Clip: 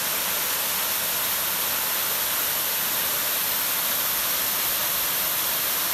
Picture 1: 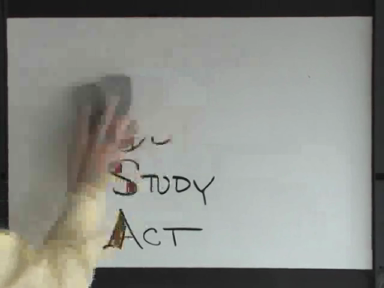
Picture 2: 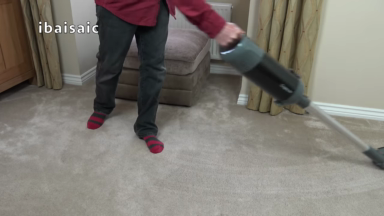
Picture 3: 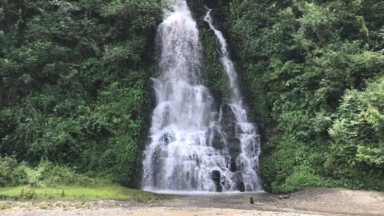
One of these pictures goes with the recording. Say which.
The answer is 3